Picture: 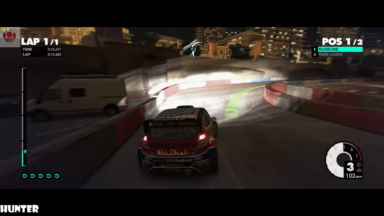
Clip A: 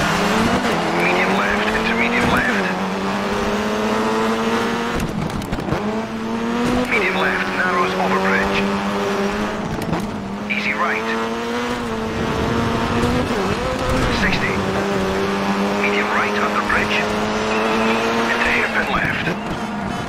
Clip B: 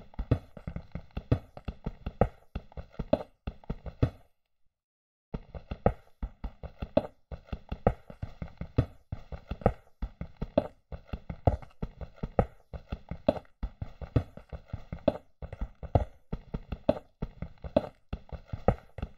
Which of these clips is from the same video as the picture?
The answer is A